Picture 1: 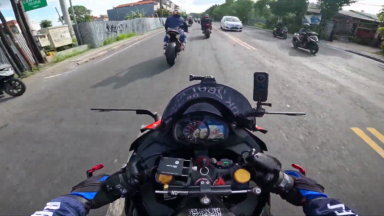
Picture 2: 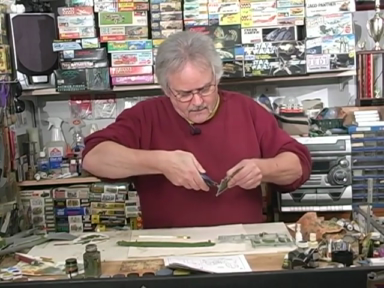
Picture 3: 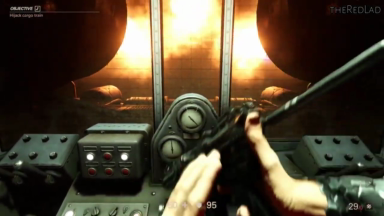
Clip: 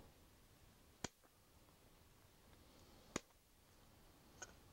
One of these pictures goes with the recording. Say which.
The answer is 2